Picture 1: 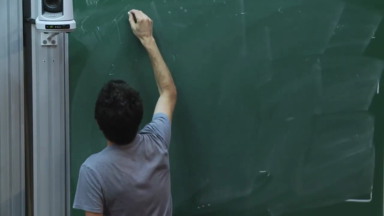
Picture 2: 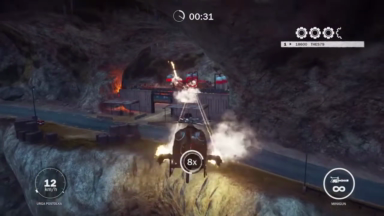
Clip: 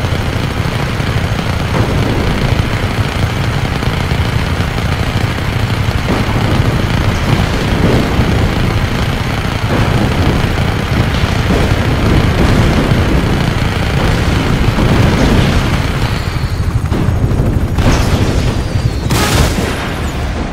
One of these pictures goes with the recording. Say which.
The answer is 2